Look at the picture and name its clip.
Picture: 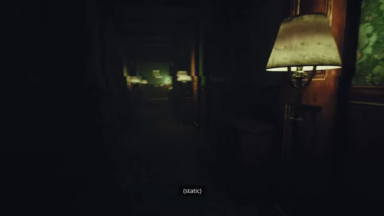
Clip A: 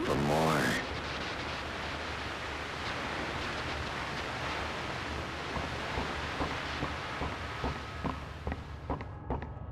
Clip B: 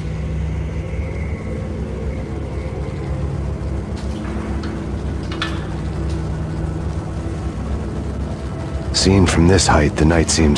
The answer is A